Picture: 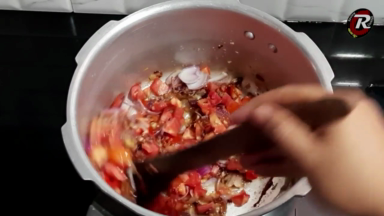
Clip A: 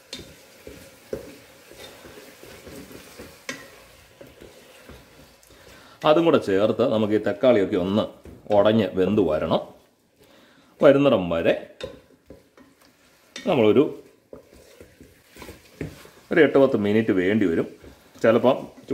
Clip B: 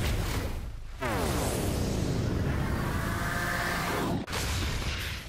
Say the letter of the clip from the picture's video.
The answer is A